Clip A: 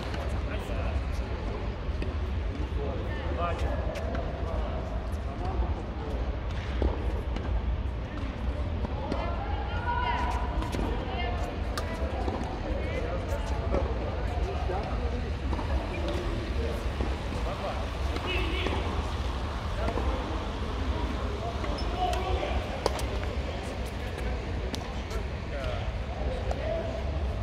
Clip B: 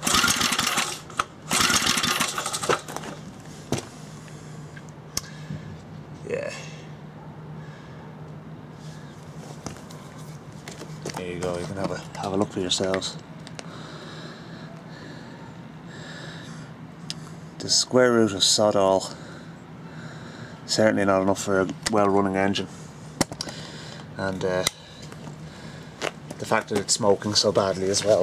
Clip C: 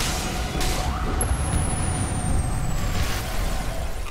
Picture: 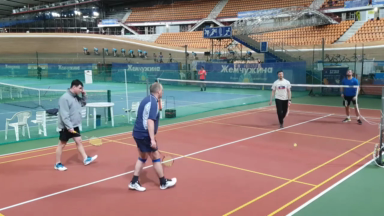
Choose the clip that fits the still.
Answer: A